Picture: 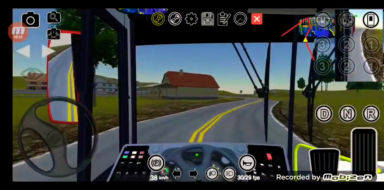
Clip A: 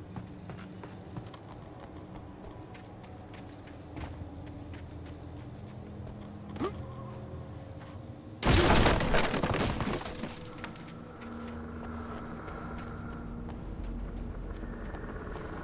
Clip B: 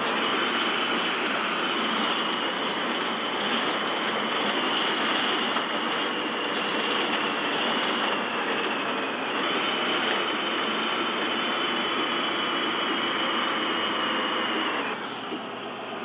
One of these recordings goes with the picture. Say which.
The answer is B